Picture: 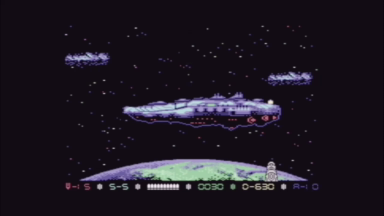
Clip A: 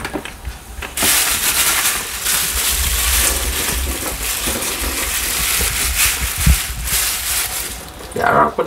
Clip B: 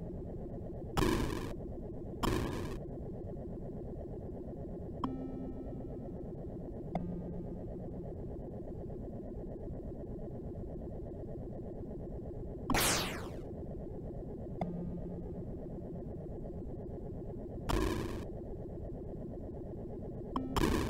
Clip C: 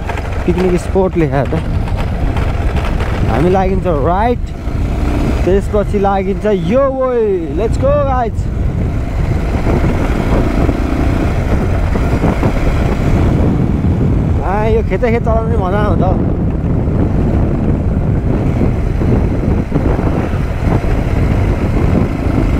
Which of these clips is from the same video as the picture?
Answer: B